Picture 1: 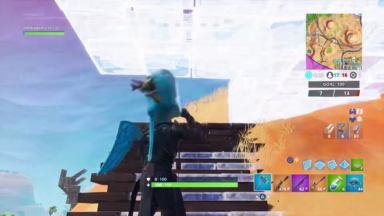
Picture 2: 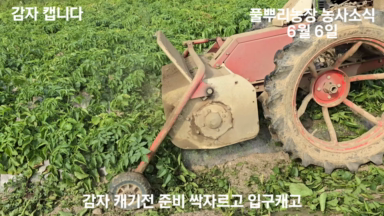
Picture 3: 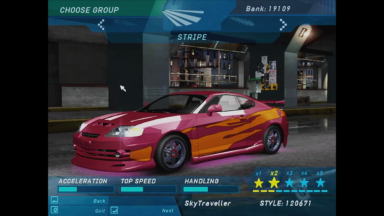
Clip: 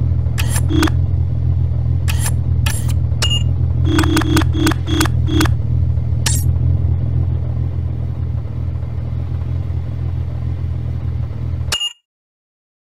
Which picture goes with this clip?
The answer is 3